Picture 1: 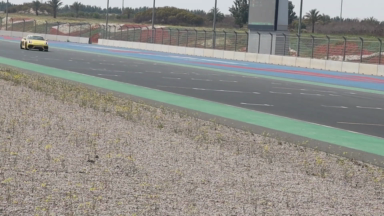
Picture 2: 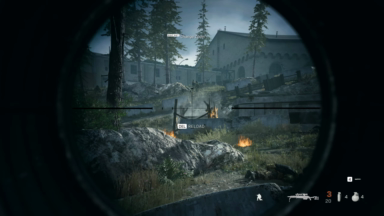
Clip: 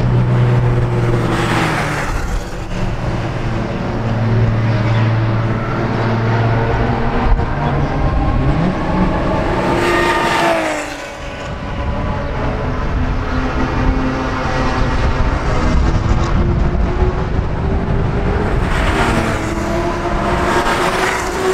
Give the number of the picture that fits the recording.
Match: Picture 1